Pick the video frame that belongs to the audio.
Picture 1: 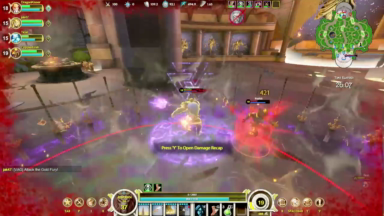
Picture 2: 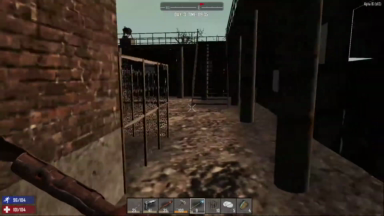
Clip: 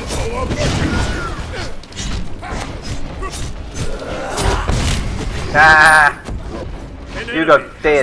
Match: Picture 1